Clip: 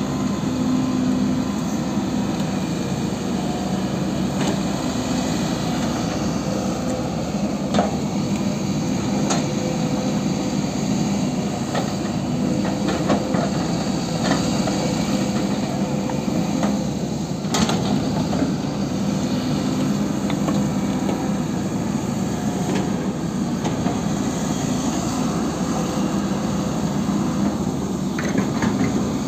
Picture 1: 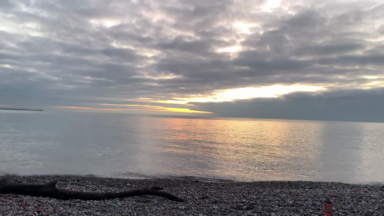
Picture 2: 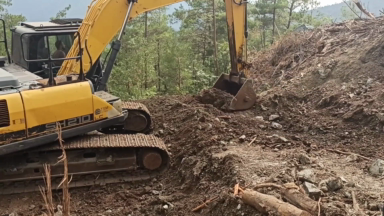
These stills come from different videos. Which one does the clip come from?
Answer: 2